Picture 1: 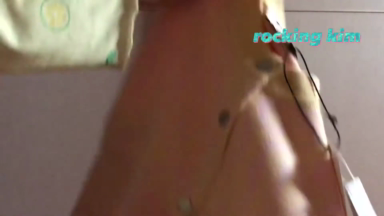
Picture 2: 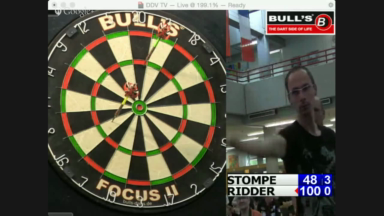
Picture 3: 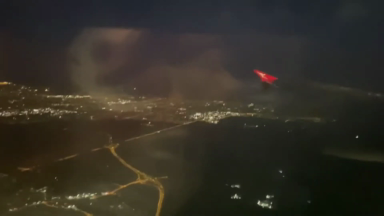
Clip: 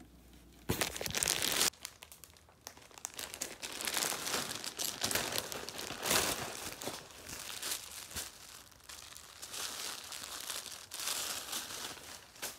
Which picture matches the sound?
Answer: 1